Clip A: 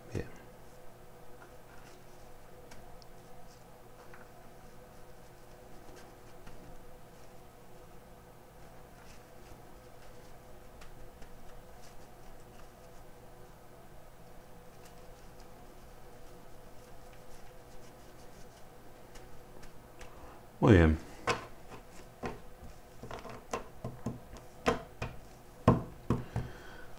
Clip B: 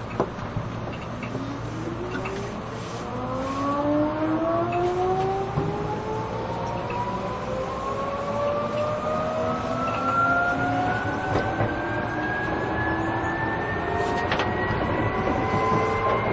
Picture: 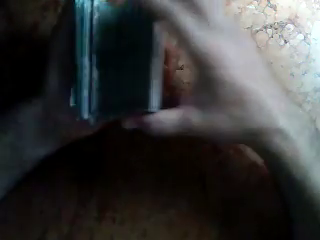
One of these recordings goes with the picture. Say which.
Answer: A